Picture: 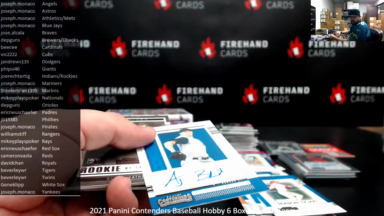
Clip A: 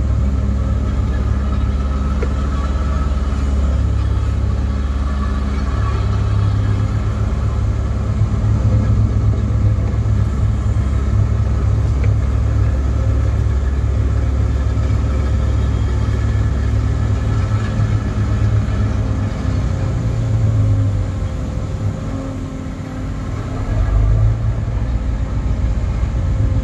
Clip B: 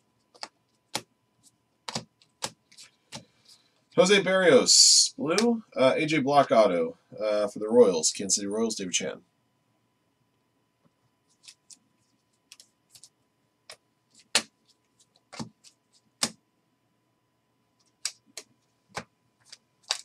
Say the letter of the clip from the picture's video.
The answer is B